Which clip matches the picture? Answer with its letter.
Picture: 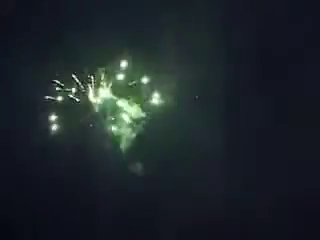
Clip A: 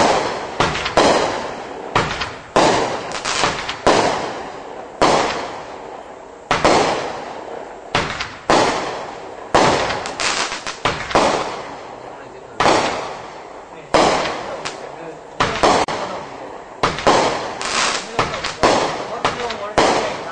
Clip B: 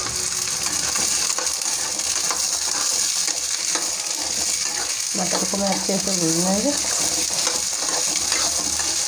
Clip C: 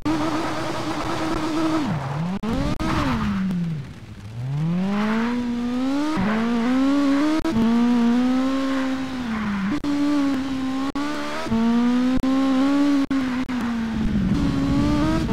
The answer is A